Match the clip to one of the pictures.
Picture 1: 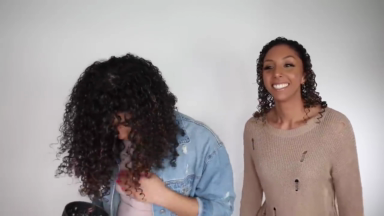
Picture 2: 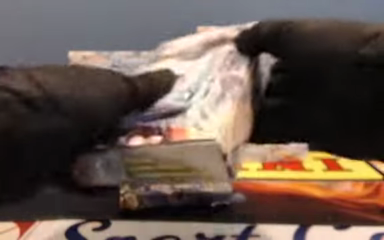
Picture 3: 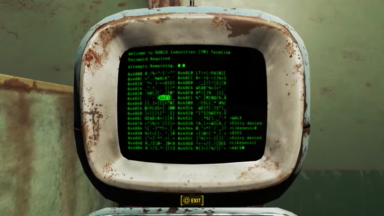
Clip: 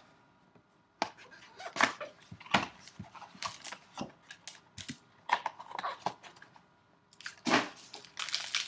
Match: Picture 2